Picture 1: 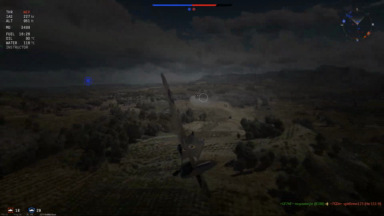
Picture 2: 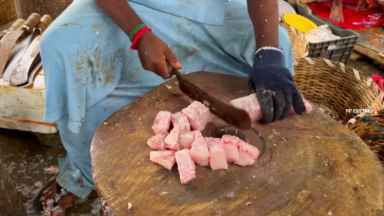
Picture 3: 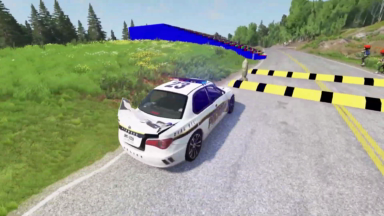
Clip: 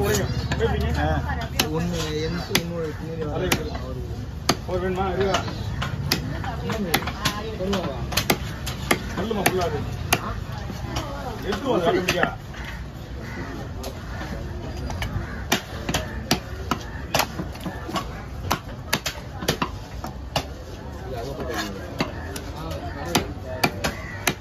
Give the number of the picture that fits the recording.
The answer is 2